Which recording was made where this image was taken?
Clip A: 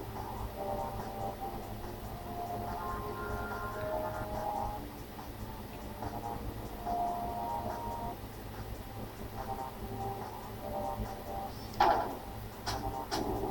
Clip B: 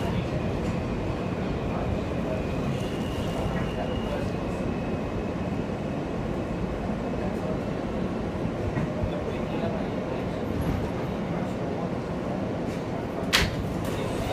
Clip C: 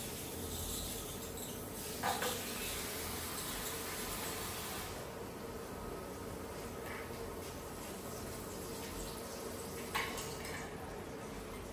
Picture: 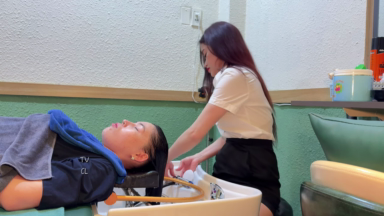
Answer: C